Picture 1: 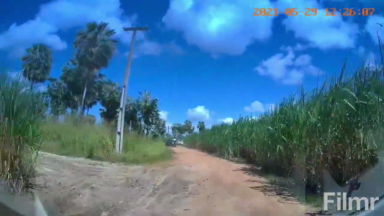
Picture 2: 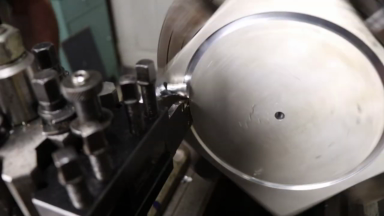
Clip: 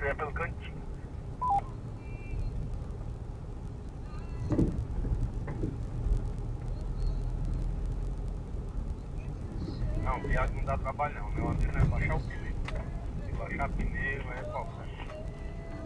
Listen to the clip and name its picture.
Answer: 1